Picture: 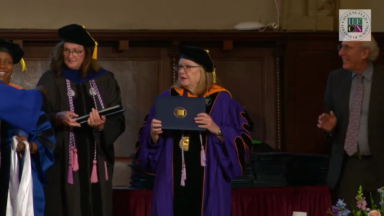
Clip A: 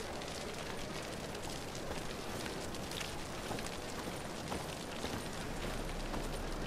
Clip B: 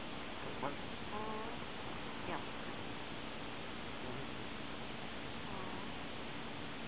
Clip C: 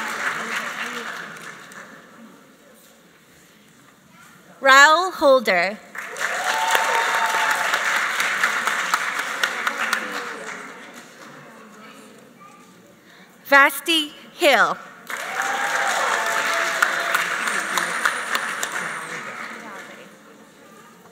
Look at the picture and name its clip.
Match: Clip C